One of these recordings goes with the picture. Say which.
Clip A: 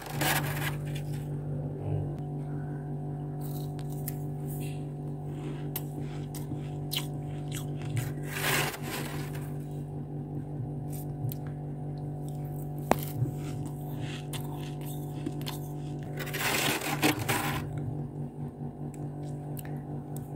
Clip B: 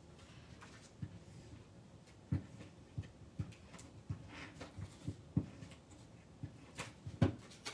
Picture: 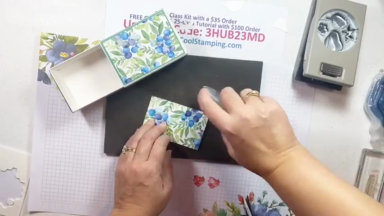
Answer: B